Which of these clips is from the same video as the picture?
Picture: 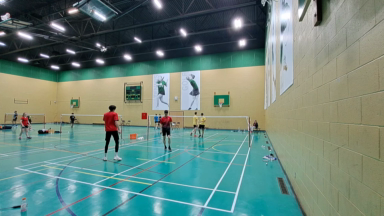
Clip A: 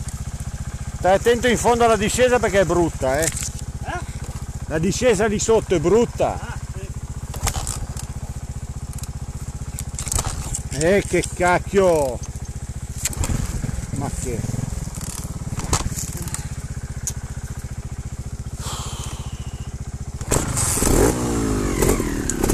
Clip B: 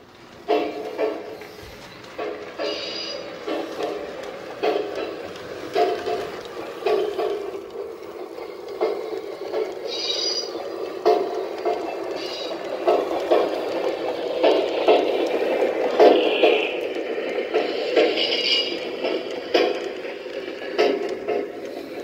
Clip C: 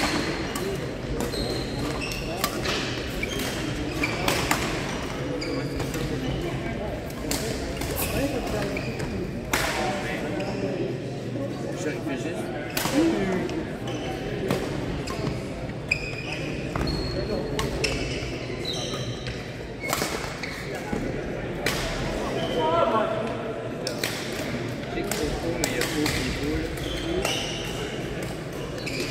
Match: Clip C